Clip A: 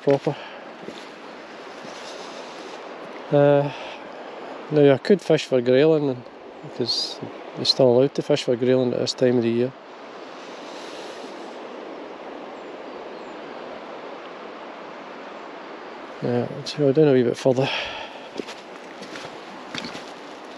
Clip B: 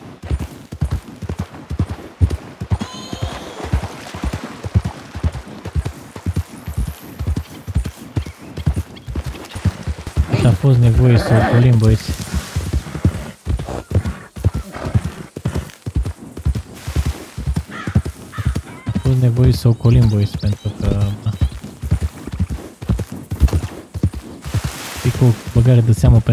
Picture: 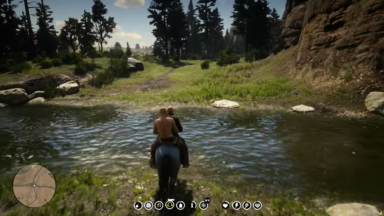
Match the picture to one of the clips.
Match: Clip B